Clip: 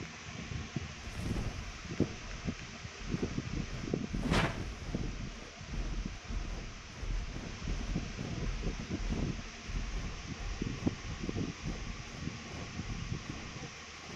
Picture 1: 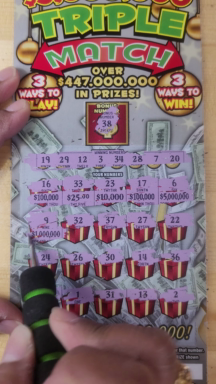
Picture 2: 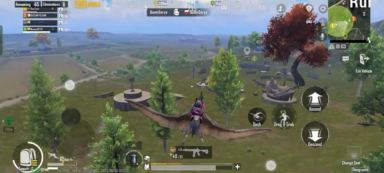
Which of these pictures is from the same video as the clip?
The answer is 2